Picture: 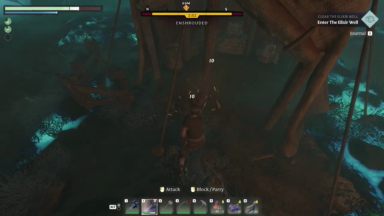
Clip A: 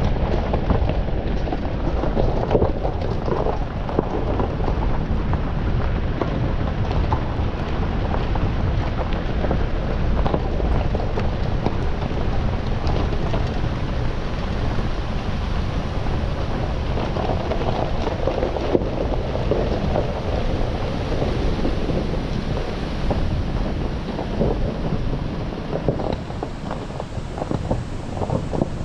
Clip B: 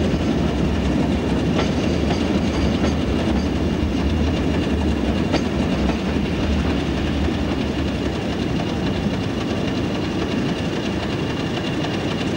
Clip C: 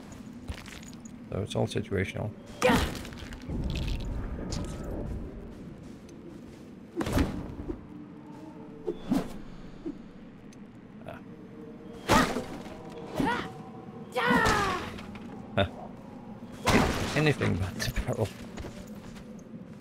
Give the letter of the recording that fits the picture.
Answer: C